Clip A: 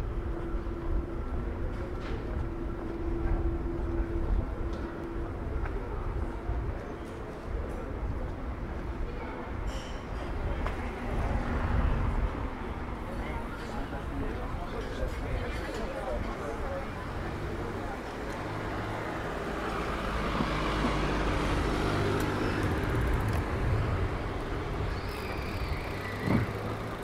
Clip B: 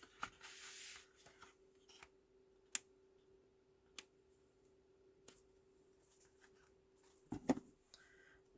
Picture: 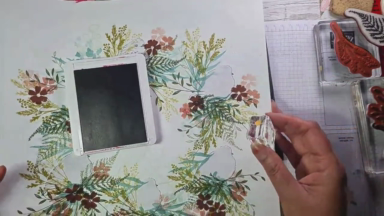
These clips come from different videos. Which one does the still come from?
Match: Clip B